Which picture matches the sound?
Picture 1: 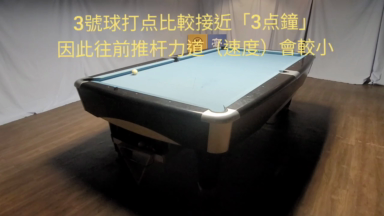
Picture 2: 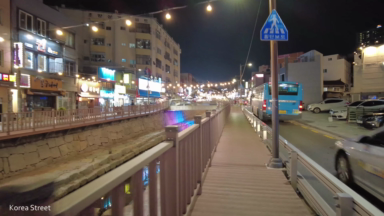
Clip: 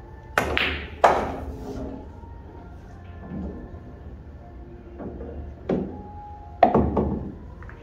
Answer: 1